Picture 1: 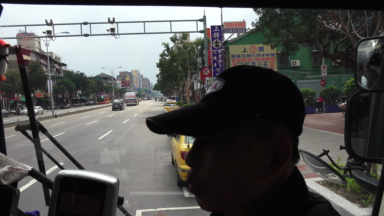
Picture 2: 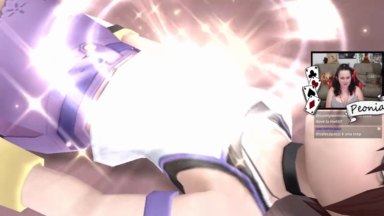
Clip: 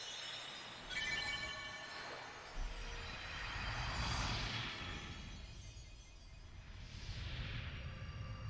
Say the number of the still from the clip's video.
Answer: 2